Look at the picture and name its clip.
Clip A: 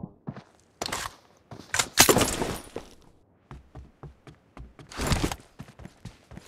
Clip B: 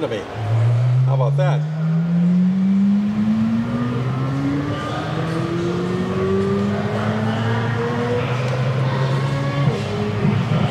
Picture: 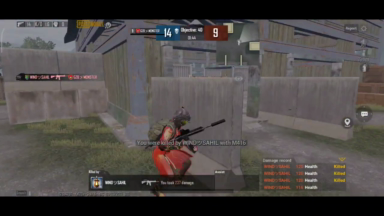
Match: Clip A